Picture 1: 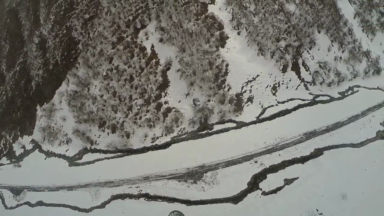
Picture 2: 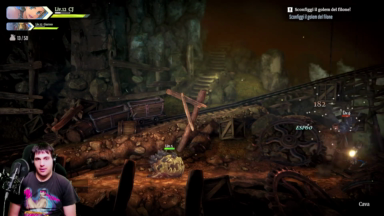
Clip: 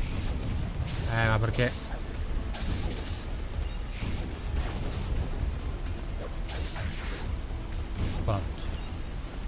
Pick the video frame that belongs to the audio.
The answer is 2